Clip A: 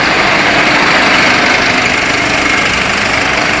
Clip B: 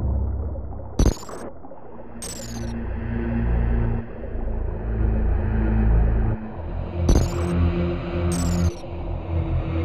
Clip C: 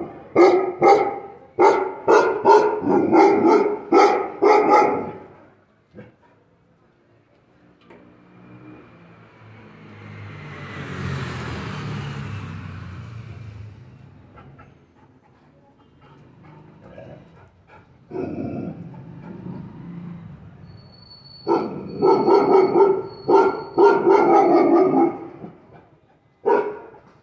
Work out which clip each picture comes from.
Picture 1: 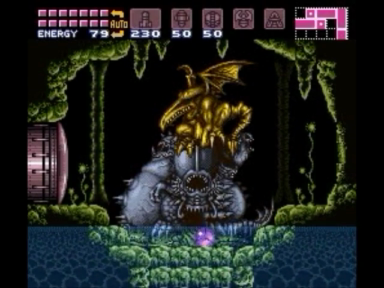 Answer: B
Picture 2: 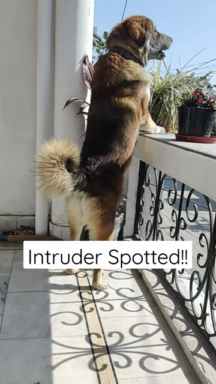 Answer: C